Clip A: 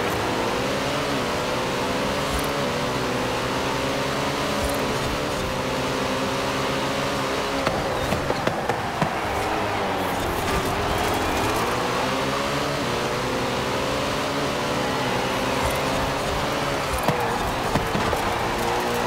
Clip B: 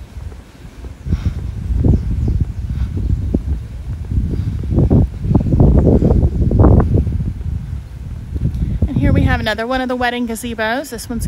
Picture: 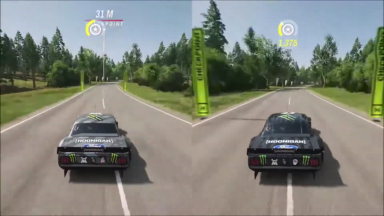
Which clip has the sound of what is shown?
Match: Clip A